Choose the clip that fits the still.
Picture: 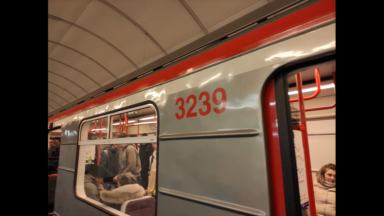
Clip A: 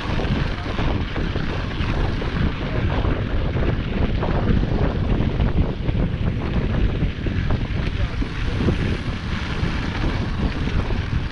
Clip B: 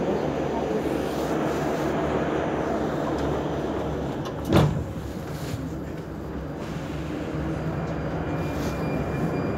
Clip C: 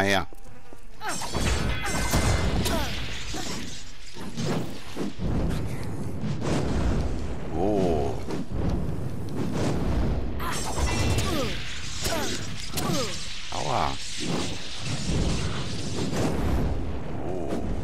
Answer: B